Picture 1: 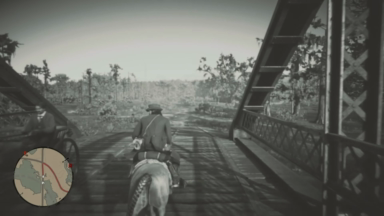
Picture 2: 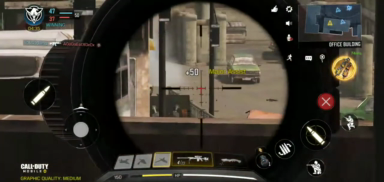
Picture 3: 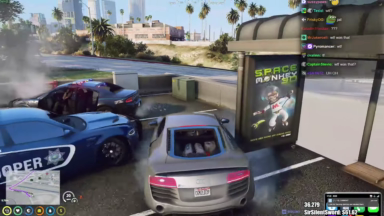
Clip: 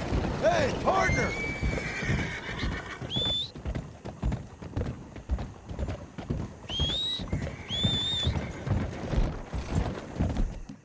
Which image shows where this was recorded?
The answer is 1